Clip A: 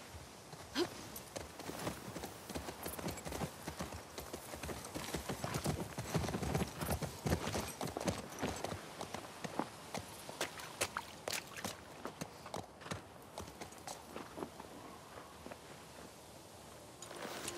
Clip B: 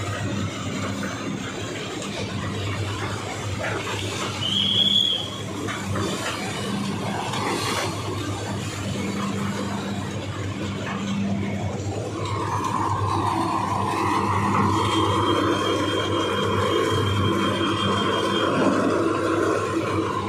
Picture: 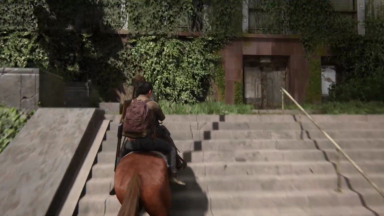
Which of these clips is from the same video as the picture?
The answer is A